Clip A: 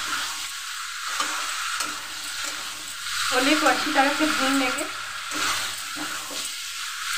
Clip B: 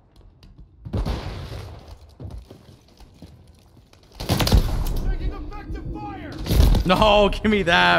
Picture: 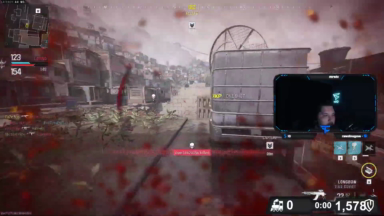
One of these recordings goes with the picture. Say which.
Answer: B